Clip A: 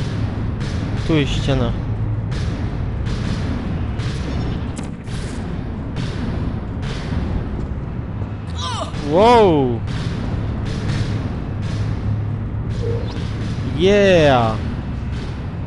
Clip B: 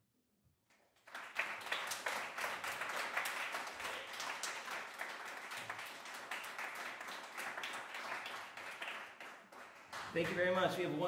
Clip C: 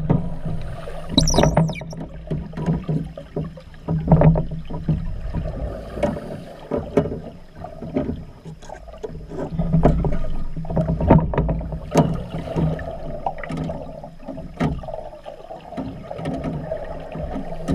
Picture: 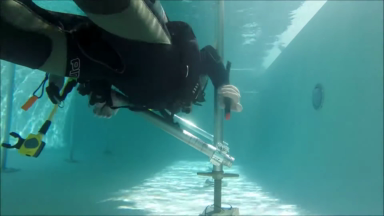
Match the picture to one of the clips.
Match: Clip C